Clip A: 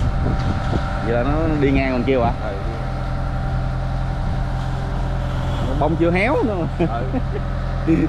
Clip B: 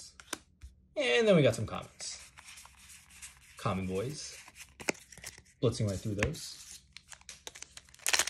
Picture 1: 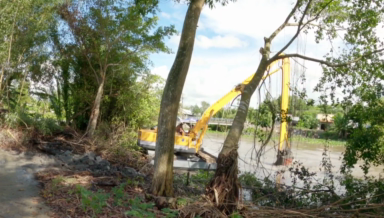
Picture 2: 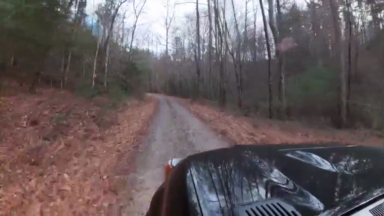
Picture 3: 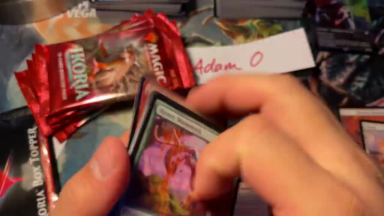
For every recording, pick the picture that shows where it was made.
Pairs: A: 1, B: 3